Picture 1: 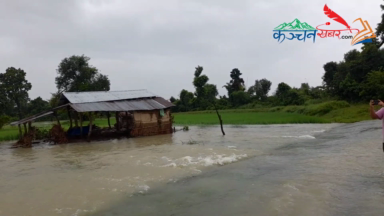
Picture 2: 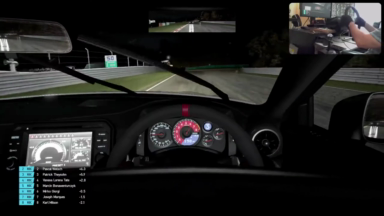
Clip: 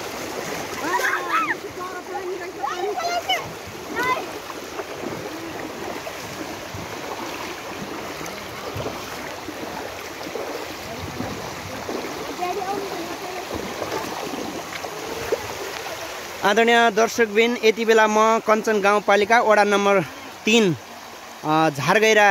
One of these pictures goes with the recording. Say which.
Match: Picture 1